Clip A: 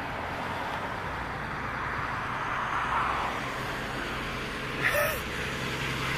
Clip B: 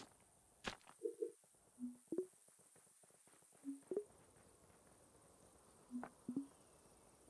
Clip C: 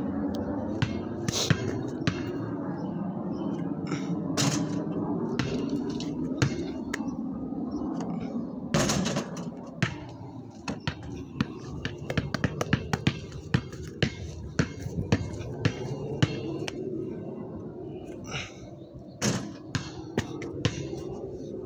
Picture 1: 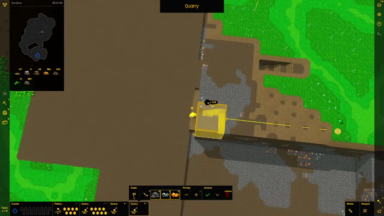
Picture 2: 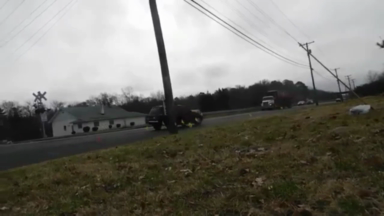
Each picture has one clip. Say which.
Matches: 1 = B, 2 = A